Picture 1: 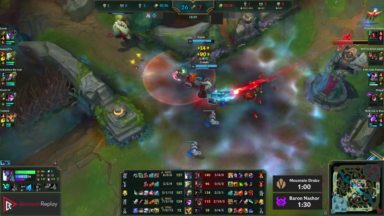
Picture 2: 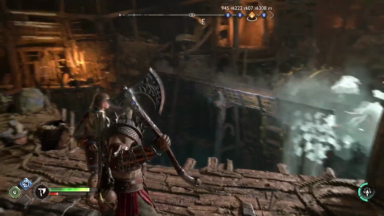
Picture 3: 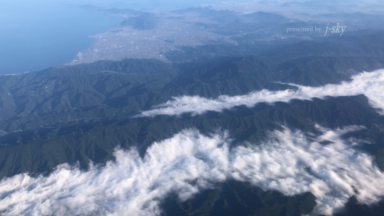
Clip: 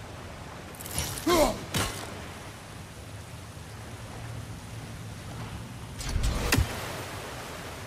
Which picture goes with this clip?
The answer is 2